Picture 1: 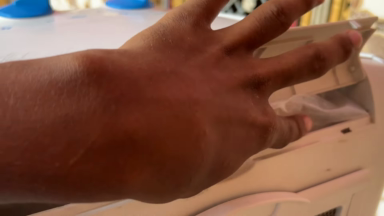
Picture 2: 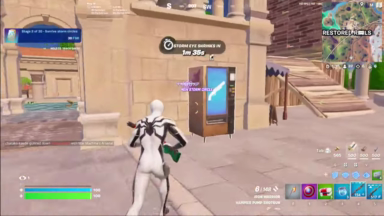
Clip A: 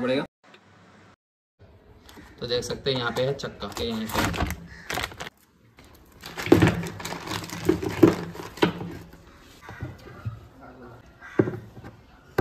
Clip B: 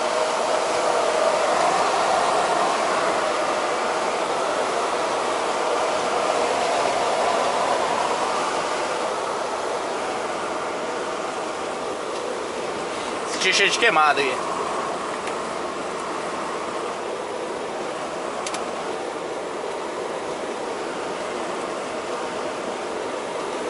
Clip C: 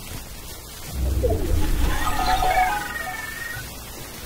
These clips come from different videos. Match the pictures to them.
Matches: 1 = A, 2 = C